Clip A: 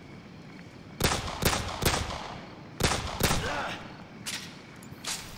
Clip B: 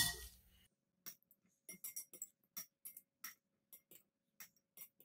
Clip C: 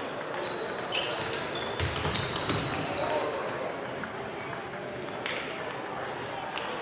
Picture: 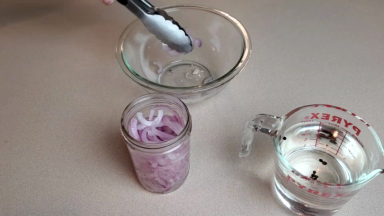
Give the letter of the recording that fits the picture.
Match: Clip B